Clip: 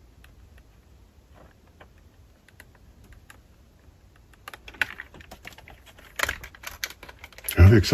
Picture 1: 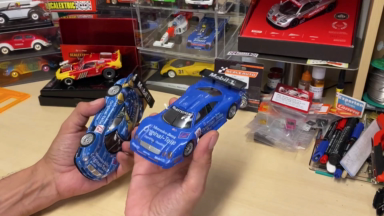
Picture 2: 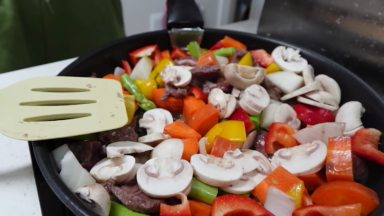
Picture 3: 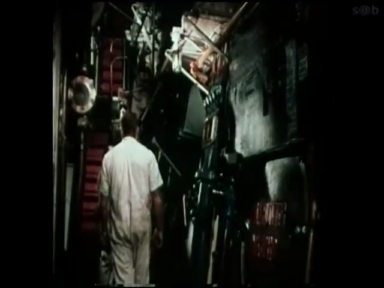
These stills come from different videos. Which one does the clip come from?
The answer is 1